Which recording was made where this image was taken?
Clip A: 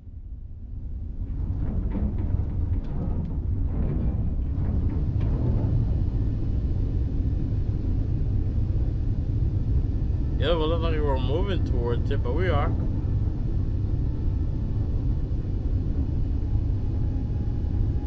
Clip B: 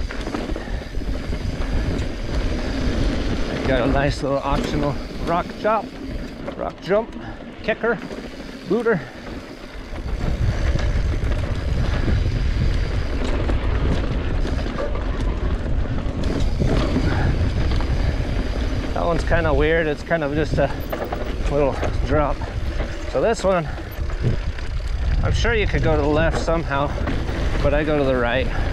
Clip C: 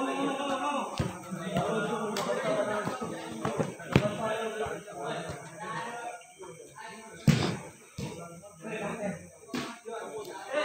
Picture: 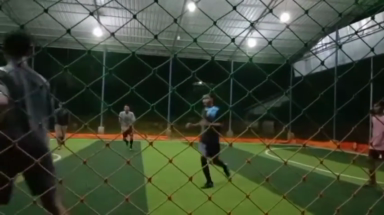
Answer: C